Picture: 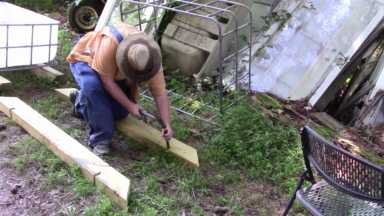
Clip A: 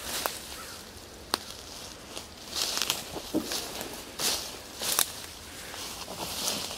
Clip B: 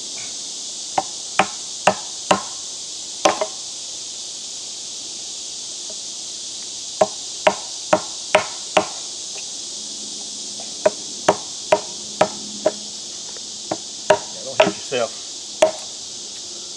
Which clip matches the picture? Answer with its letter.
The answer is B